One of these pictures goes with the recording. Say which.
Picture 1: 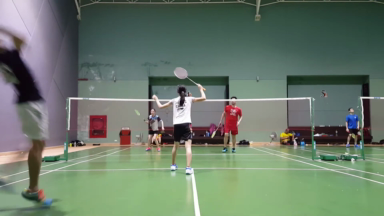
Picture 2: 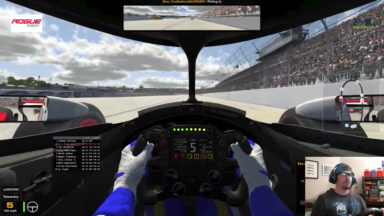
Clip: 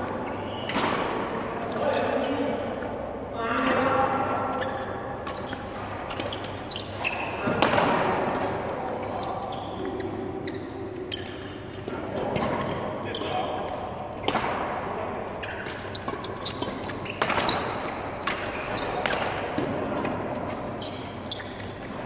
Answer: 1